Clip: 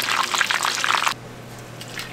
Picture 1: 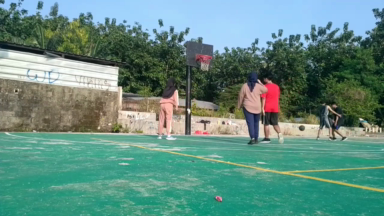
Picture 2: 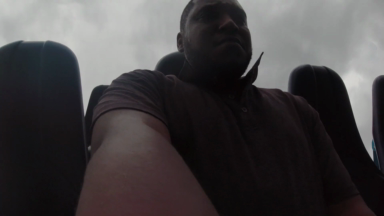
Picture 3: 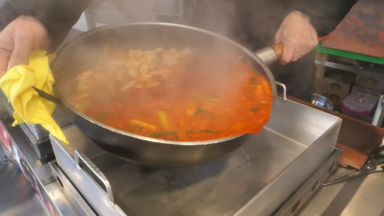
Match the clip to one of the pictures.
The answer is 3